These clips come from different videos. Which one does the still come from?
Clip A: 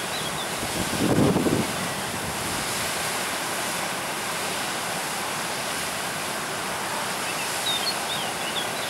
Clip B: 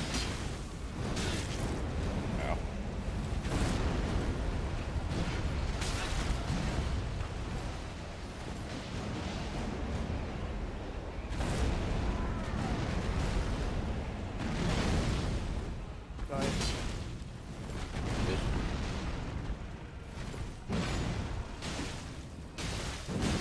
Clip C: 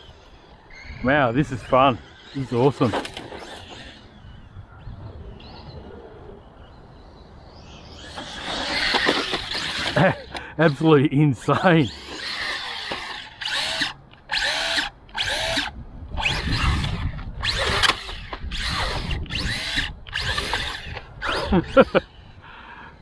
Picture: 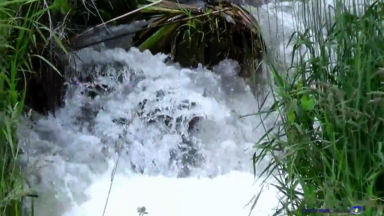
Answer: A